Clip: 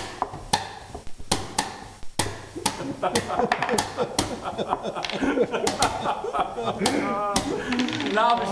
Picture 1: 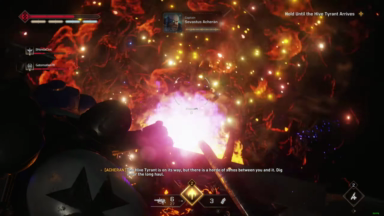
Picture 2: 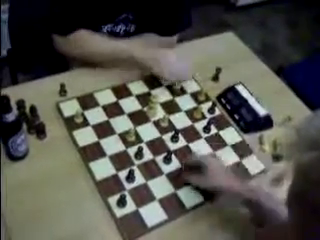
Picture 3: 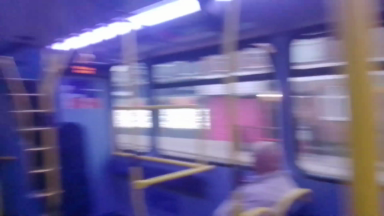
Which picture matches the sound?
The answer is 2